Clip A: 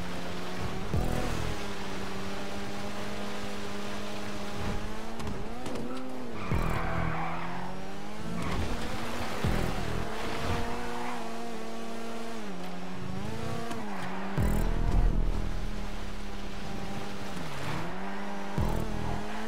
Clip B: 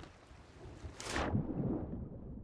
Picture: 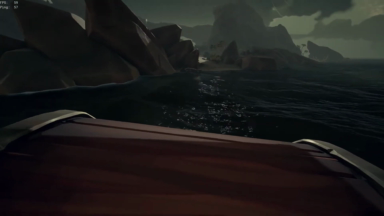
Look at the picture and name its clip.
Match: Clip B